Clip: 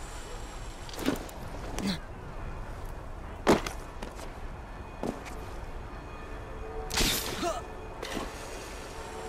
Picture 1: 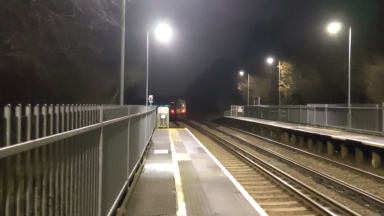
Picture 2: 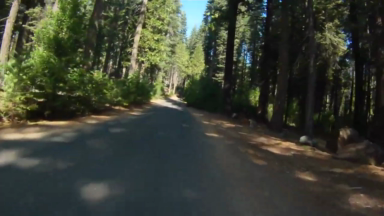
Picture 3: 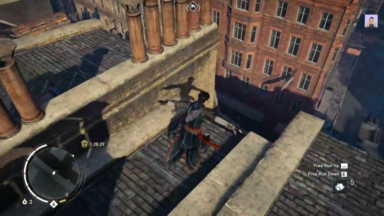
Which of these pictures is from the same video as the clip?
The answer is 3